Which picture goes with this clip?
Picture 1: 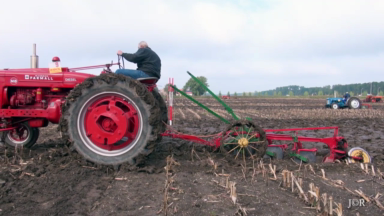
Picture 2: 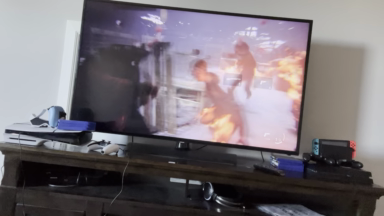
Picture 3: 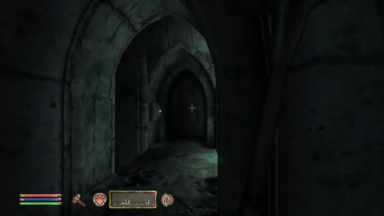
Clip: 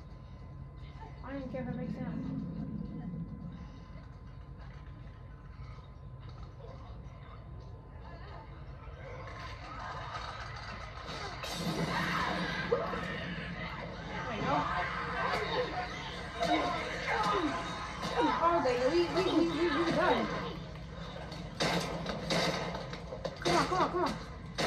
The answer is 2